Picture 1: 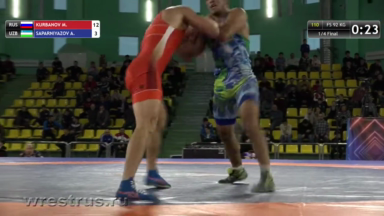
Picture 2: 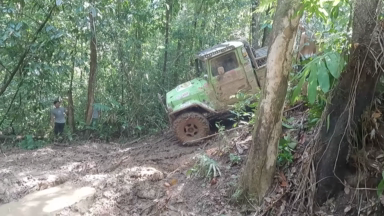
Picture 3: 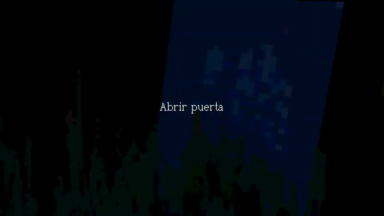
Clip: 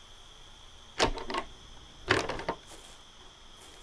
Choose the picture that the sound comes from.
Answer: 3